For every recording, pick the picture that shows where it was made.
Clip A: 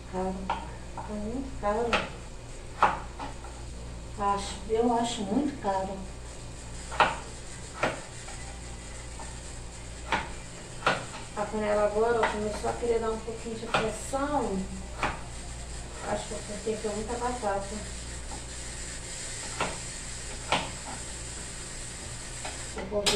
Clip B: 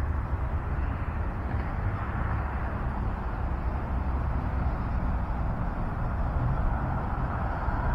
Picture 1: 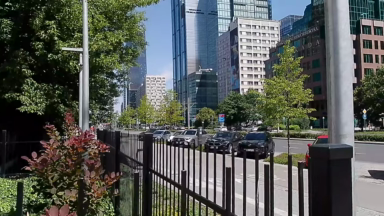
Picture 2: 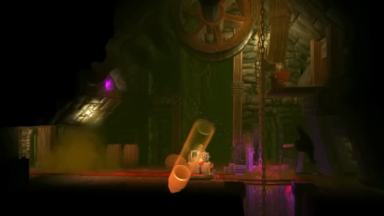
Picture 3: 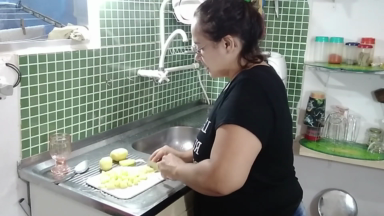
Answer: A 3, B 1